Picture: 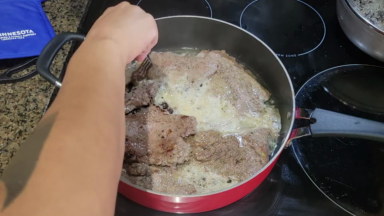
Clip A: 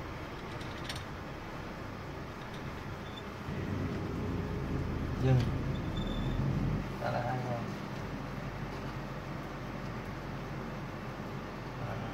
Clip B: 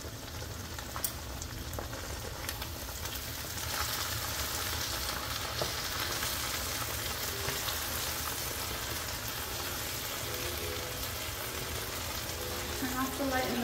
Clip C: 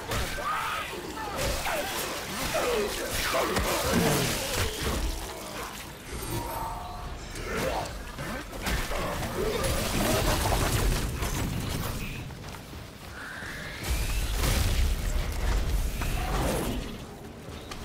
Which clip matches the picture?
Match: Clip B